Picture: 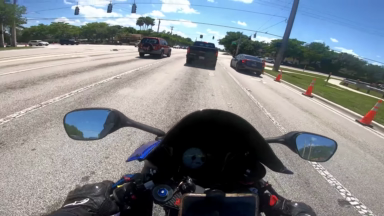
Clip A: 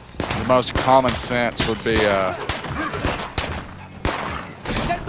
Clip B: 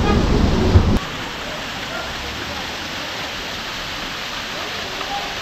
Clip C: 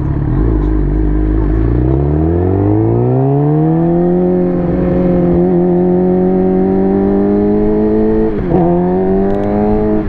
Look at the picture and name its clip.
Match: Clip C